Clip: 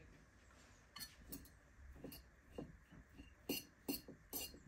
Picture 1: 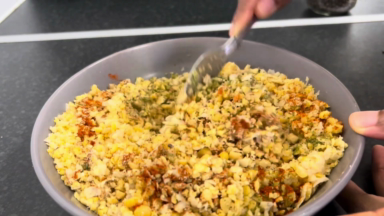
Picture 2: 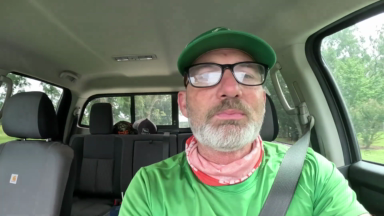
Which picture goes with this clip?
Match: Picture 1